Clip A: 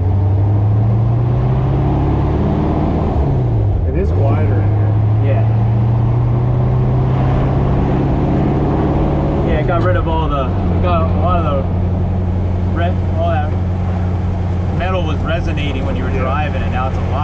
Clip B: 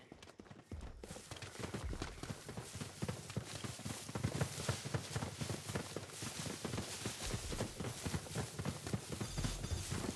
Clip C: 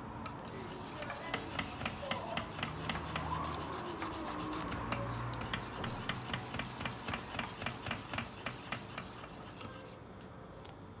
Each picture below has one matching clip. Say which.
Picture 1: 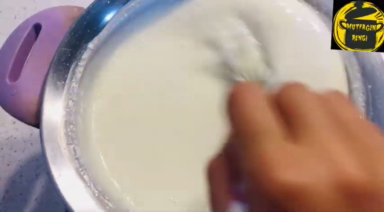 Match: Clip C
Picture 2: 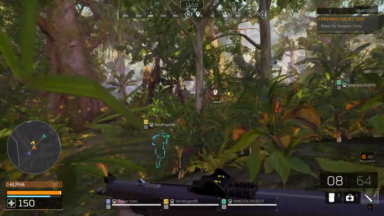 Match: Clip B